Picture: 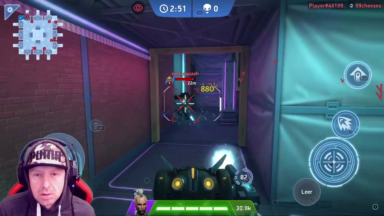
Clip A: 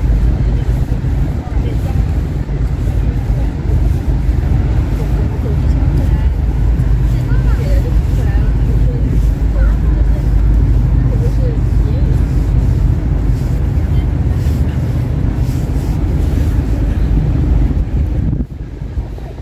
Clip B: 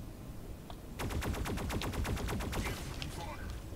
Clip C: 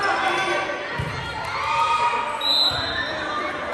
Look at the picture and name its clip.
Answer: B